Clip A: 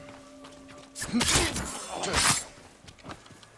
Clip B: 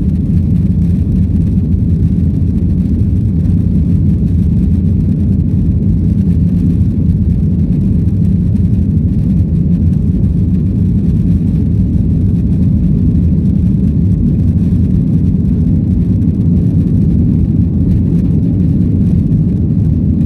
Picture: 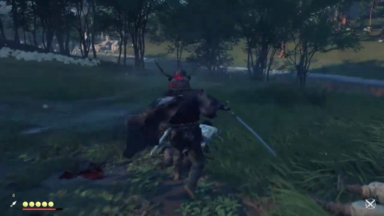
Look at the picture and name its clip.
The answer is A